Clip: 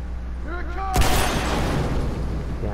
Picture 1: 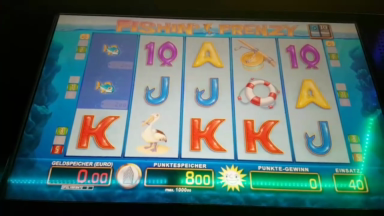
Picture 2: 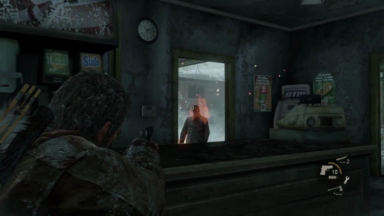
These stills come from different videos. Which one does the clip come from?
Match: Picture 2